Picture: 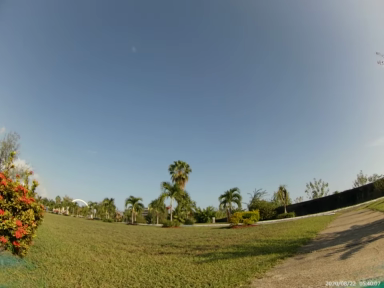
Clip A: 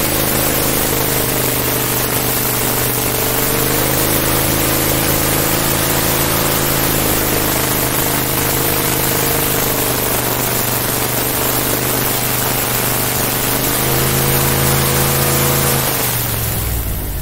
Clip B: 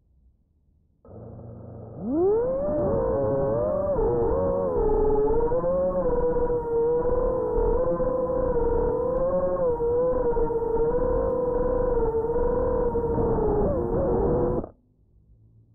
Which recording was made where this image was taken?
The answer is B